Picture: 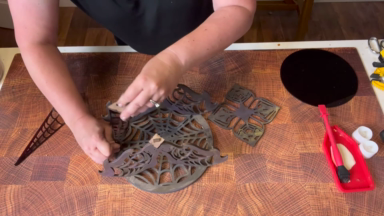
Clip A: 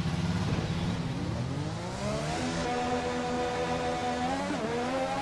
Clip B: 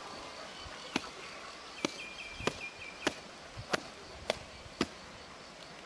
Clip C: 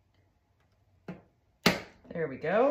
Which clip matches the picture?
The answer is C